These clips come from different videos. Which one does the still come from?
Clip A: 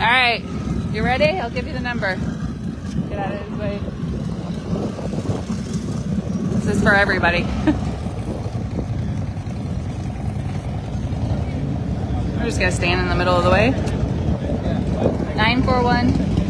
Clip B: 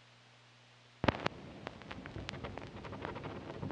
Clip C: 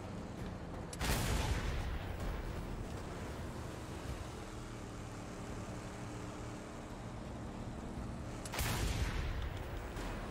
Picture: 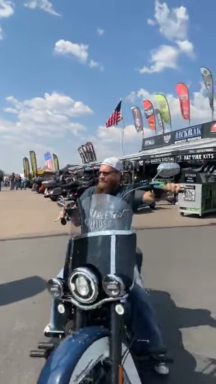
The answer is A